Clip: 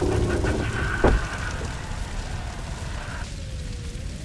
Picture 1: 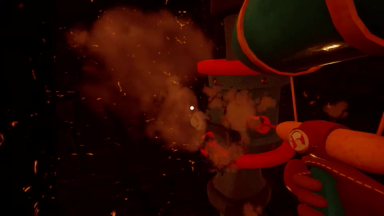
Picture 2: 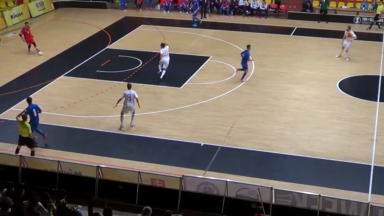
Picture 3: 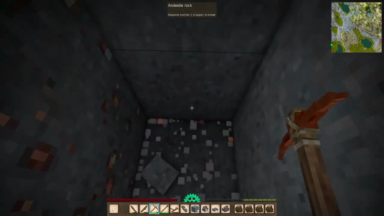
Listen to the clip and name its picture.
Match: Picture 1